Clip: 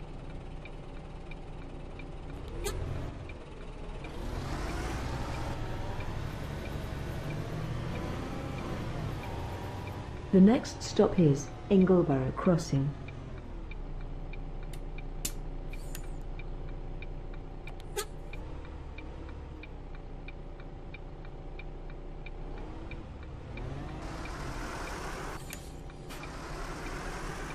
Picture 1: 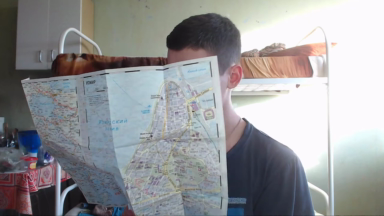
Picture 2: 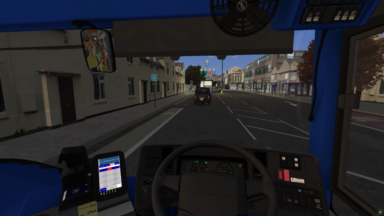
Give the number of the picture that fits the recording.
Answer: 2